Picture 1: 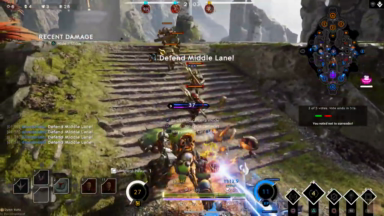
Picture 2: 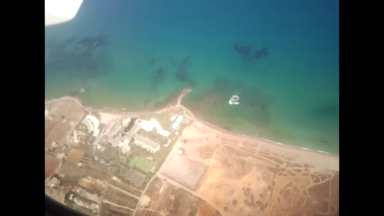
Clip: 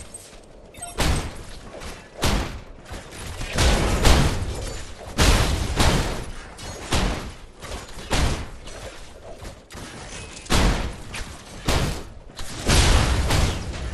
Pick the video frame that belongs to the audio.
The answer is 1